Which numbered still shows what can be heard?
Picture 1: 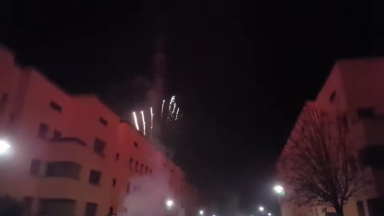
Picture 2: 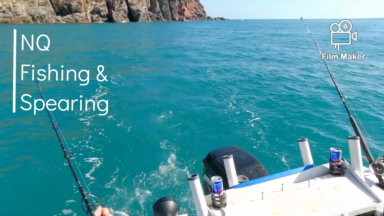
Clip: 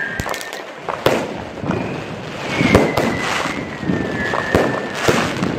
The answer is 1